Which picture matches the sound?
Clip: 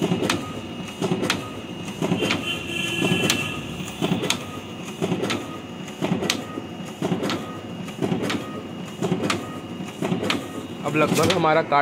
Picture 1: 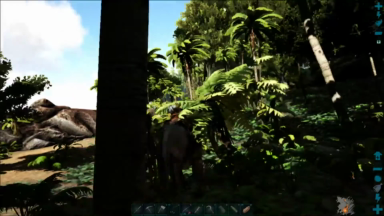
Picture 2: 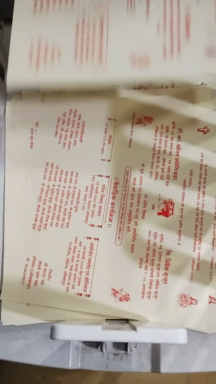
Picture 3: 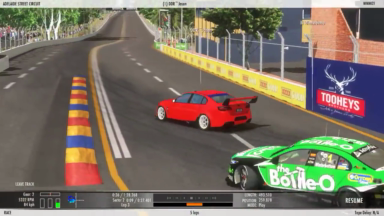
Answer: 2